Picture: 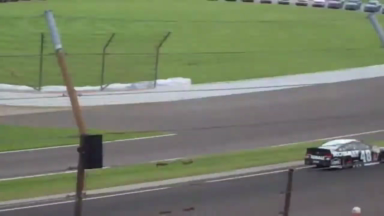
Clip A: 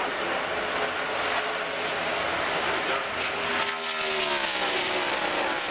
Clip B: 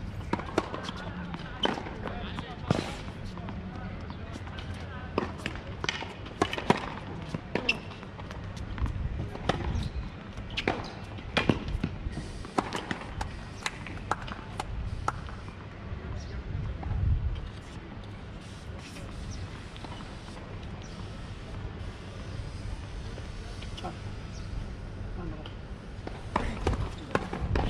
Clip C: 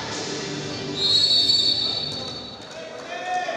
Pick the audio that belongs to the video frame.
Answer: A